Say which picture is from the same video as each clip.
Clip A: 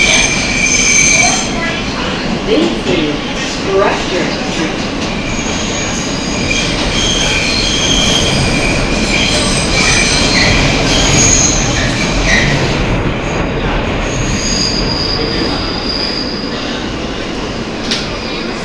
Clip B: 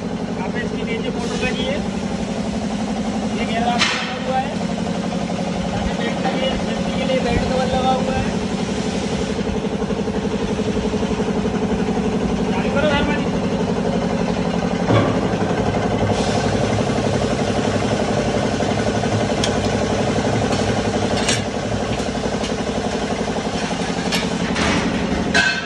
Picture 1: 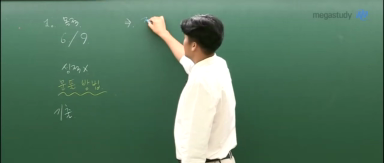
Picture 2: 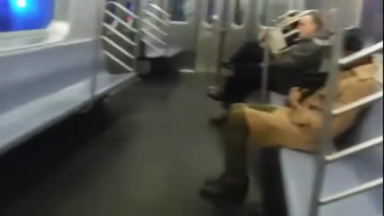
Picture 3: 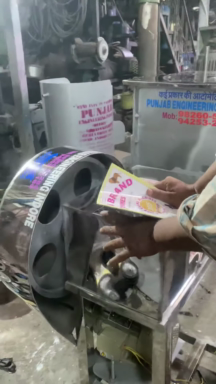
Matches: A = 2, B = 3